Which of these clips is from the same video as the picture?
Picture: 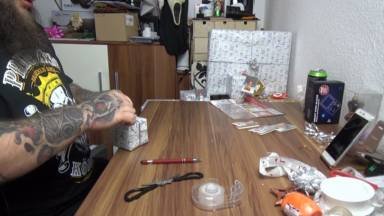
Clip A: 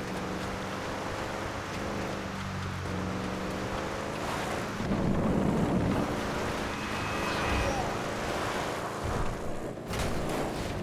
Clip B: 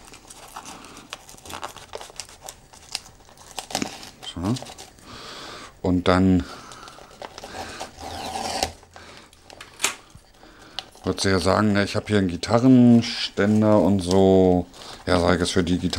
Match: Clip B